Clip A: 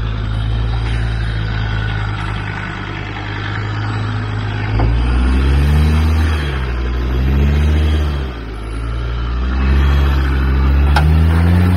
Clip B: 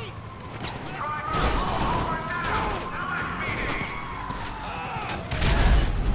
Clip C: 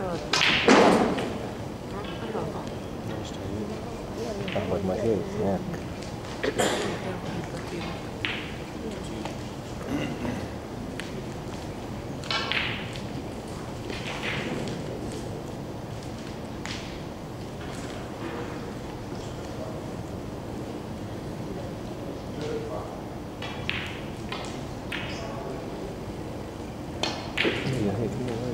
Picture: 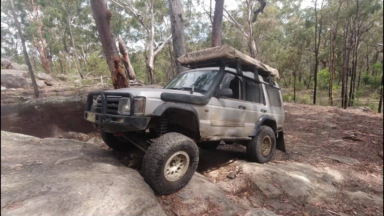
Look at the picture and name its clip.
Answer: A